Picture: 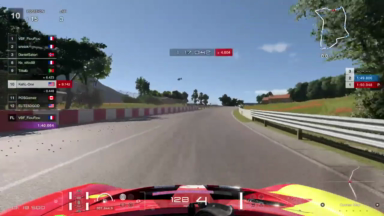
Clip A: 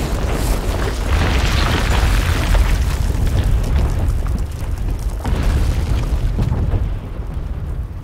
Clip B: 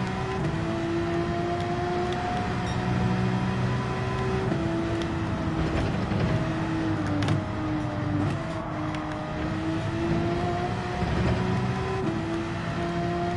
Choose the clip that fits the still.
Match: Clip B